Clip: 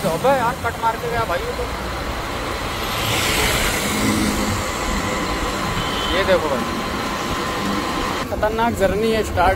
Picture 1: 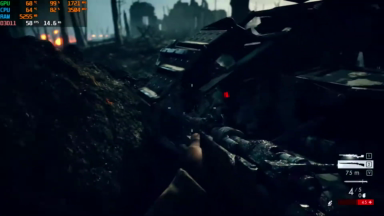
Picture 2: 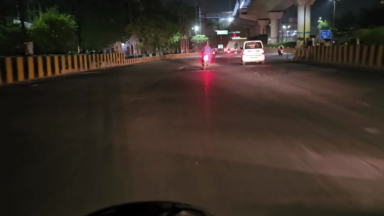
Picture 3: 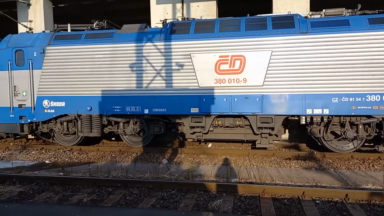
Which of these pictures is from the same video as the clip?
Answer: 2